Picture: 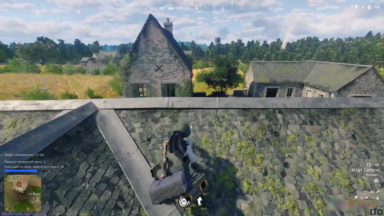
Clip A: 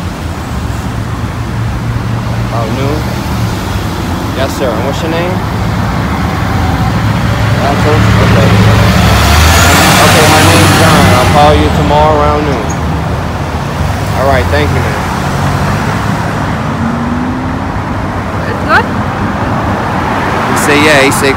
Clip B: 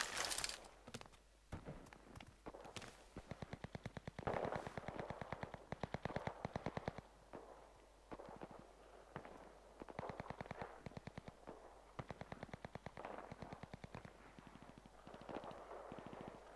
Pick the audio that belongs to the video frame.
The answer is B